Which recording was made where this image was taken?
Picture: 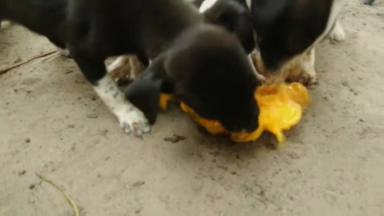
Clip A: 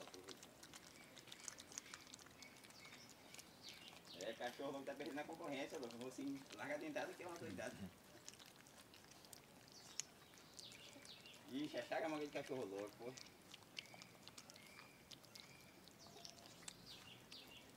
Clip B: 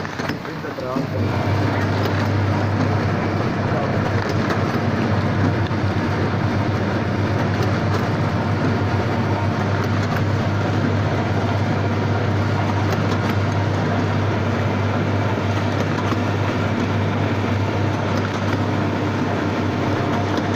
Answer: A